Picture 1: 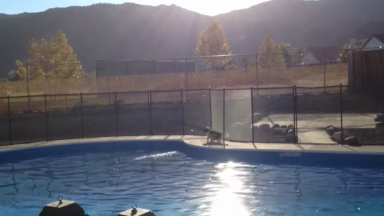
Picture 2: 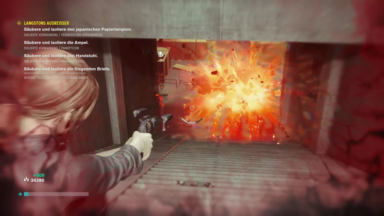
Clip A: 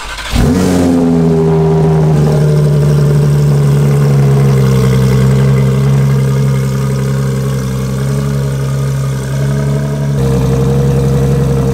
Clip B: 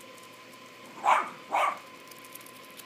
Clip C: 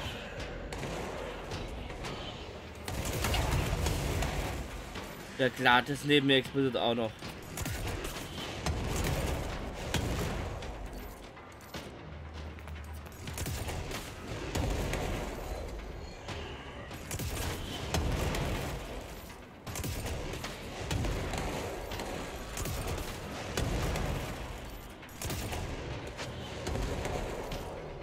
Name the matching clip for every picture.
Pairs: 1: B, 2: C